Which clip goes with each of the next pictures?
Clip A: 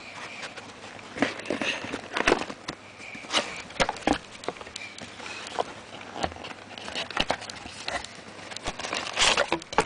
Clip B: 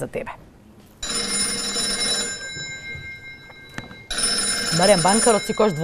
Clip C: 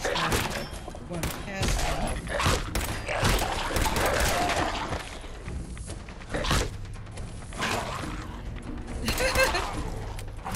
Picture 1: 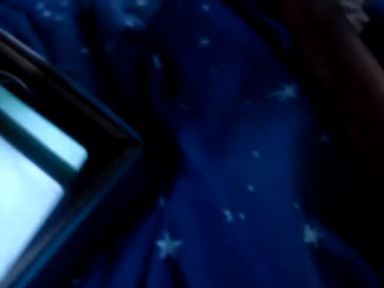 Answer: A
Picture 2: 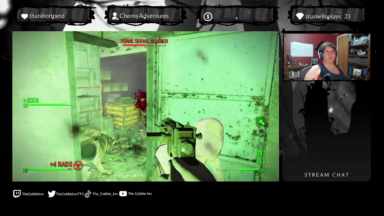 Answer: C